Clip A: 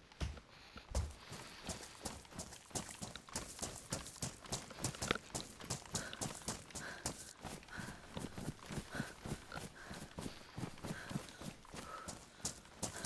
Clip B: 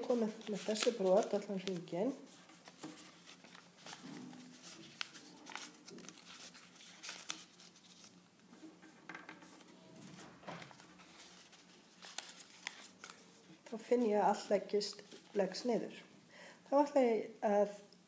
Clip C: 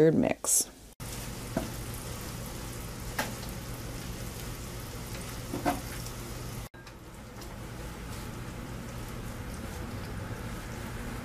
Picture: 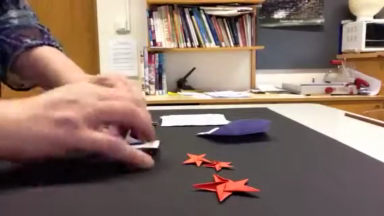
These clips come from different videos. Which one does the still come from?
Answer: B